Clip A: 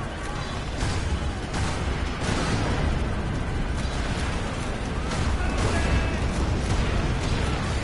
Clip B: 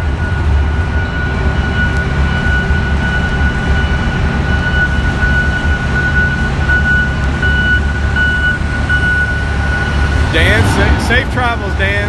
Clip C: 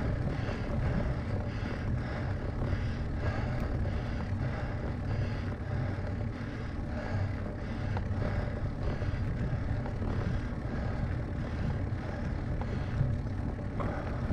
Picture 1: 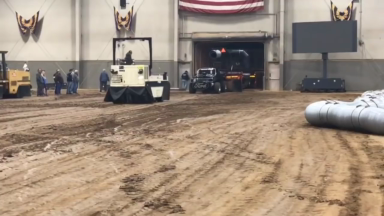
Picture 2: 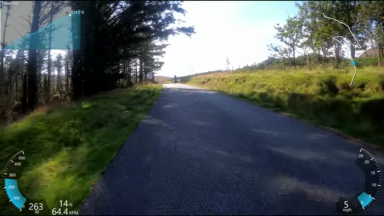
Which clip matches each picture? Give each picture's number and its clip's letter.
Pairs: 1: B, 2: C